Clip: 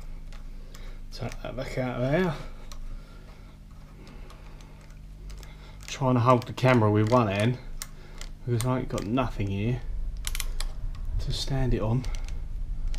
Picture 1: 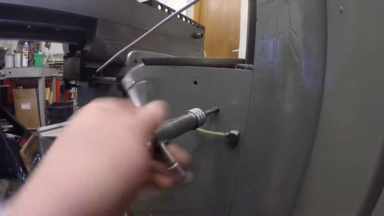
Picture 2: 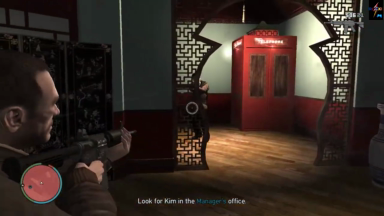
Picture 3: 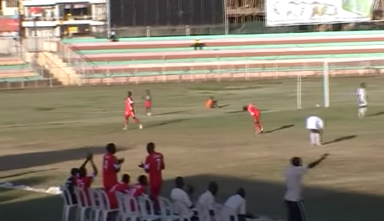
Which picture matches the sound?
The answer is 1